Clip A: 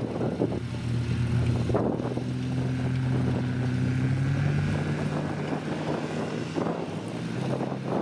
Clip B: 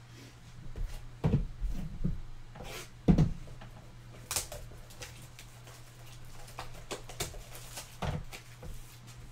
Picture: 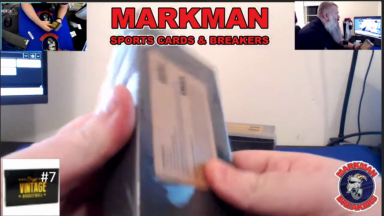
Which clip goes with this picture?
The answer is B